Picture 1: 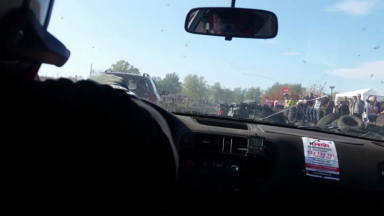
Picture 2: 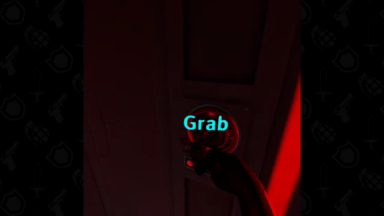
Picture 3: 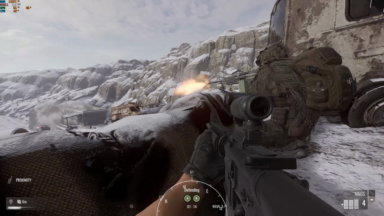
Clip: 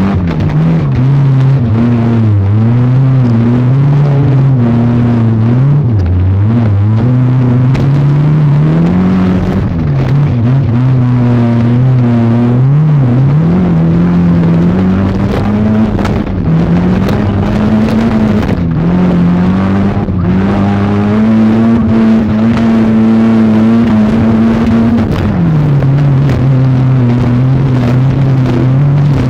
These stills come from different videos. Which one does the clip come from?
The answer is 1